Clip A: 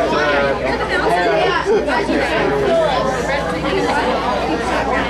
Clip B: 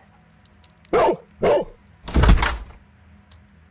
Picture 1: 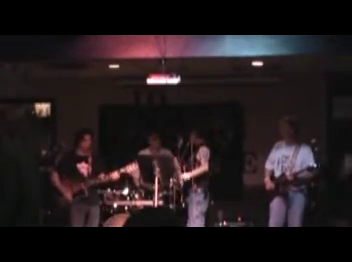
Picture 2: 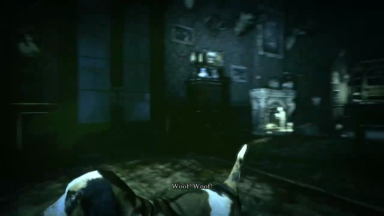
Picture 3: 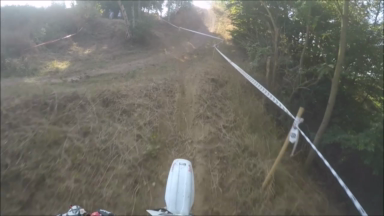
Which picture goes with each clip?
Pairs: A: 1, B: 2